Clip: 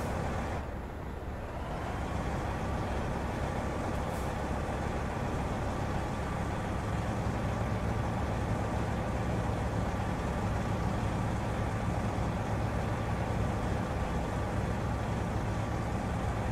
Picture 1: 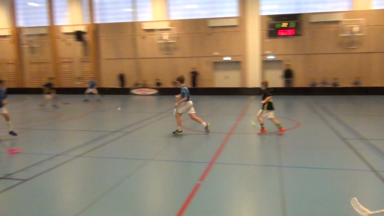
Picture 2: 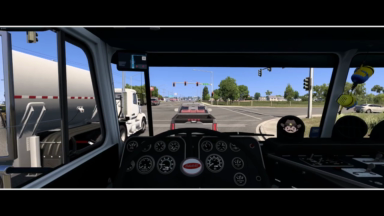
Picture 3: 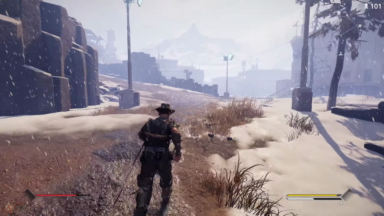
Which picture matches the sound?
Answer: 2